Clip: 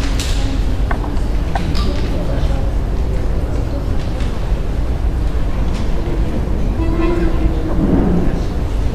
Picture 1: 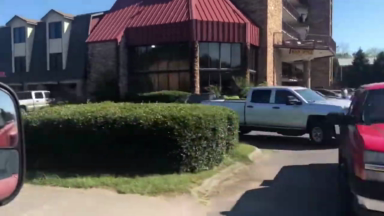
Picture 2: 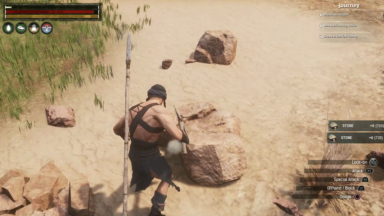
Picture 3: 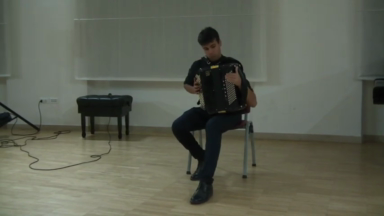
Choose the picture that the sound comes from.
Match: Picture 3